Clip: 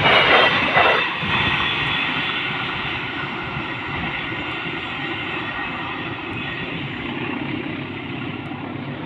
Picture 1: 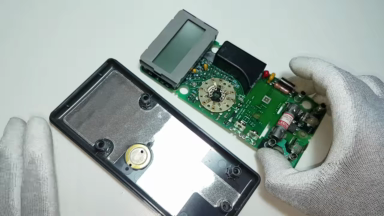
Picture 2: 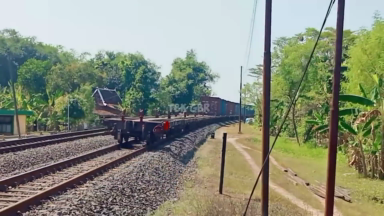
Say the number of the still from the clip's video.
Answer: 2